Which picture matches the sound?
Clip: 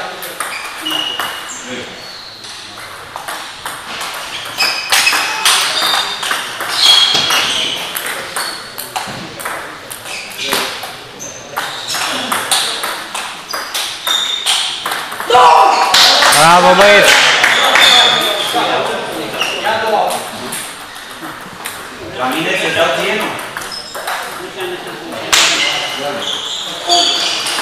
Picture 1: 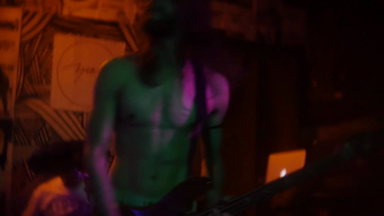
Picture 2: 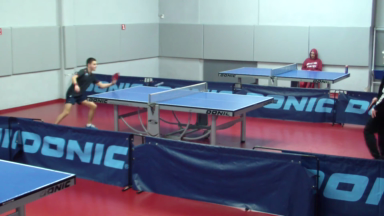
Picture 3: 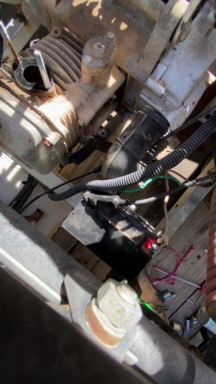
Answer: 2